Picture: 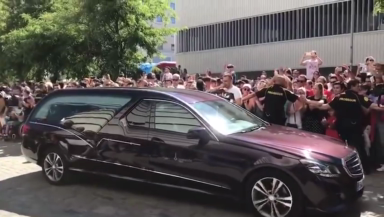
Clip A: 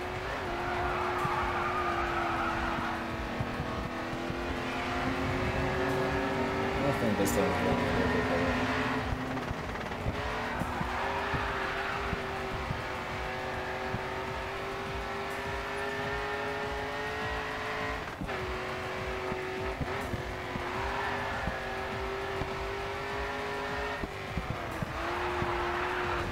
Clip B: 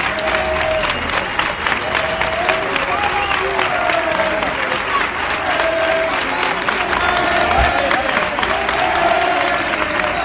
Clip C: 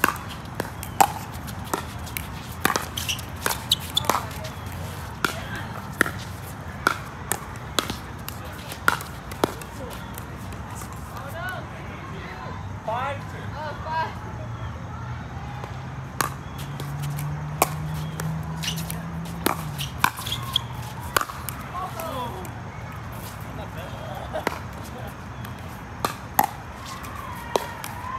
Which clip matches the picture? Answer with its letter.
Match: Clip B